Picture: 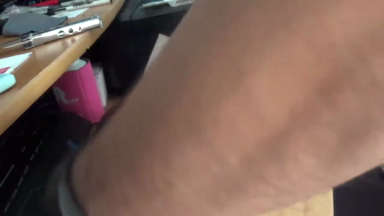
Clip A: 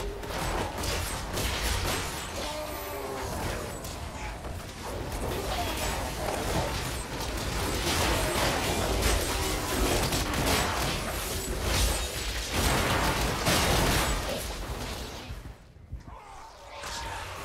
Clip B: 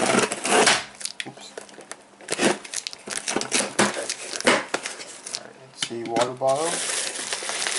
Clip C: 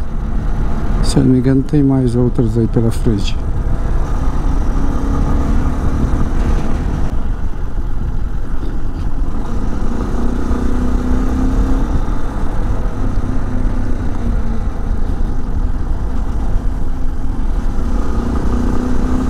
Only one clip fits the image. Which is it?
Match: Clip B